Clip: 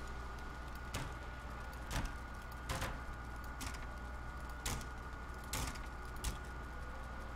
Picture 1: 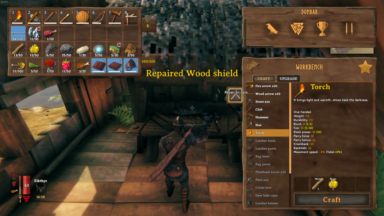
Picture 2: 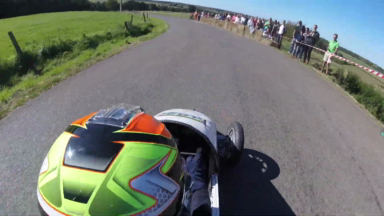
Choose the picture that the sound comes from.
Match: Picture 1